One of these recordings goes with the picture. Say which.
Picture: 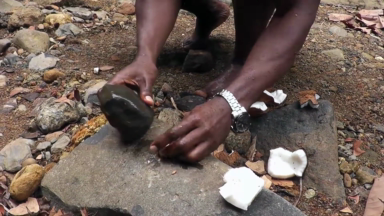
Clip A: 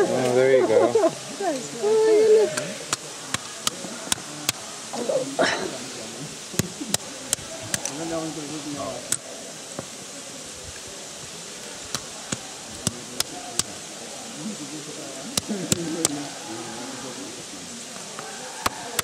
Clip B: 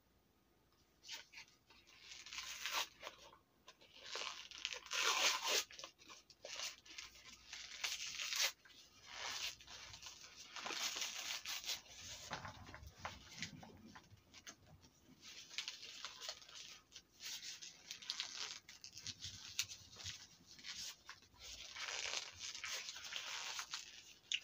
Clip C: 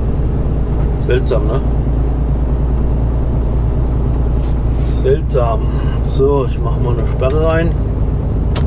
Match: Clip A